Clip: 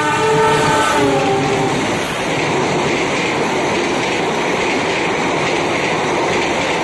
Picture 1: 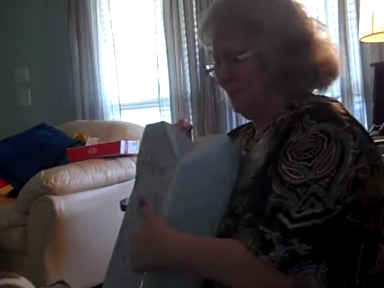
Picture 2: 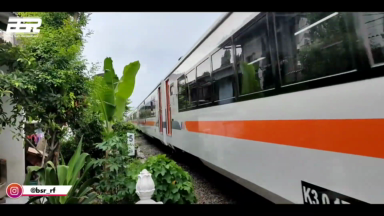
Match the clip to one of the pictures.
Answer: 2